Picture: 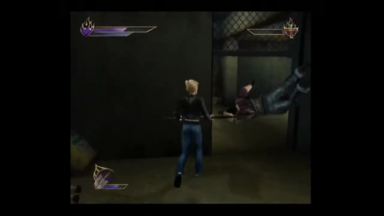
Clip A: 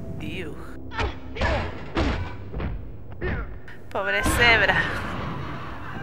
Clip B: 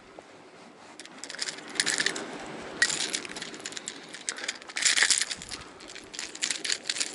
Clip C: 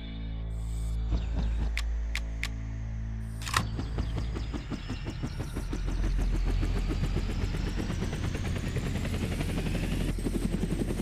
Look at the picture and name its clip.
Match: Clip A